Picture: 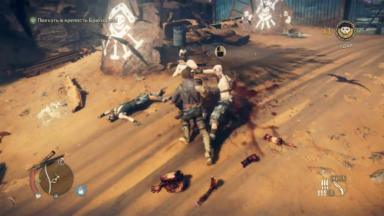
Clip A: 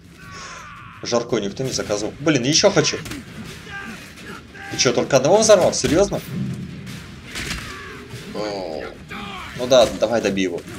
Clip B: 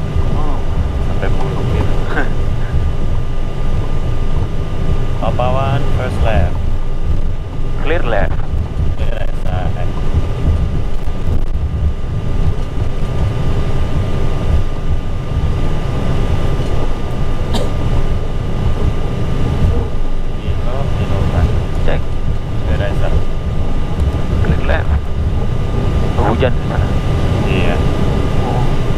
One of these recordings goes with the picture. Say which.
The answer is A